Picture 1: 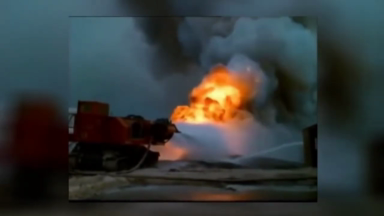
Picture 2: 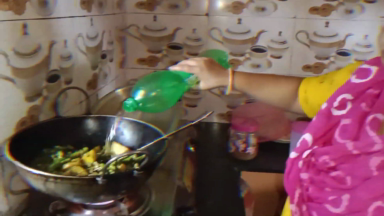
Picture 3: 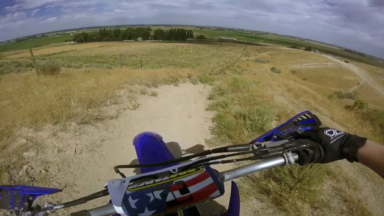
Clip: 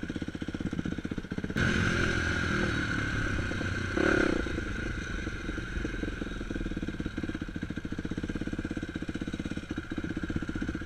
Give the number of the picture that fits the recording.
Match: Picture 3